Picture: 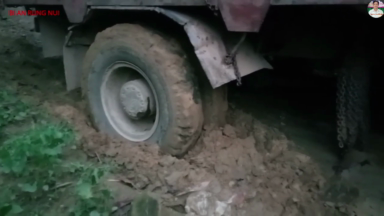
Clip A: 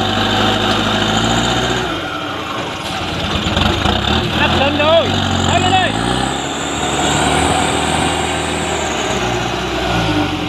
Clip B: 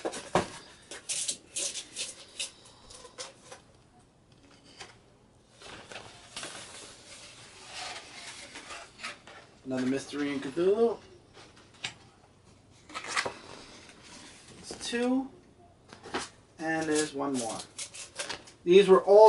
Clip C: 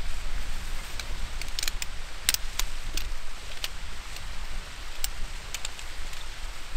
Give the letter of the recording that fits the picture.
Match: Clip A